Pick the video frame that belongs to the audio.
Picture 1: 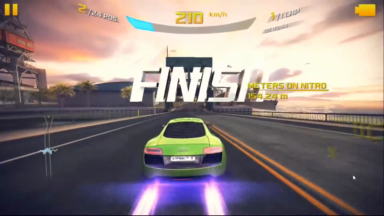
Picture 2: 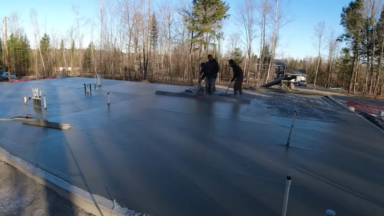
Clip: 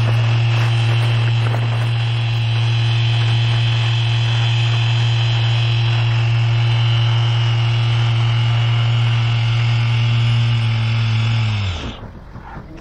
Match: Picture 2